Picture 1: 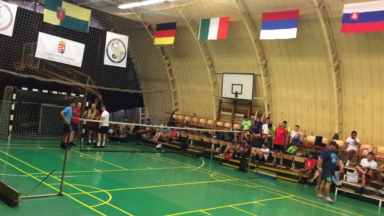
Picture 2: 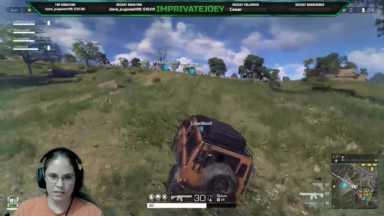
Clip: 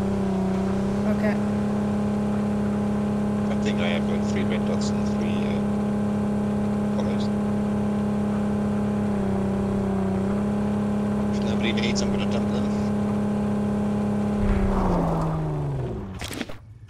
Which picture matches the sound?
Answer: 2